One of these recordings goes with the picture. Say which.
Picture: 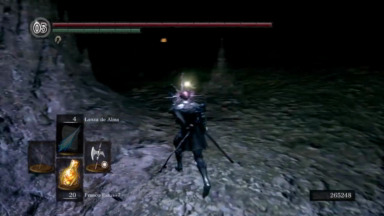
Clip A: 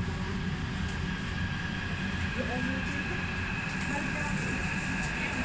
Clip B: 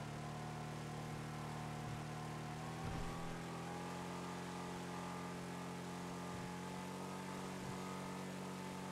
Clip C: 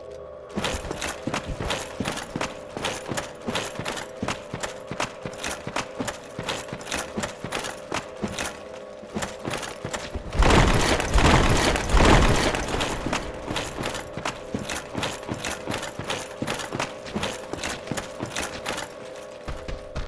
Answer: C